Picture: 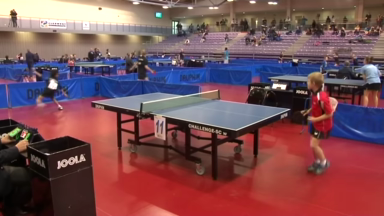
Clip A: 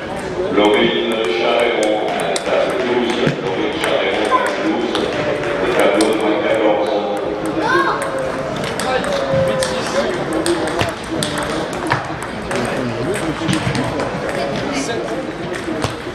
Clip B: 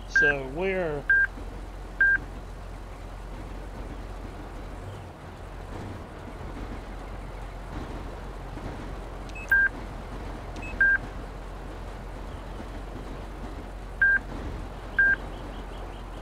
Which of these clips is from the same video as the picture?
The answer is A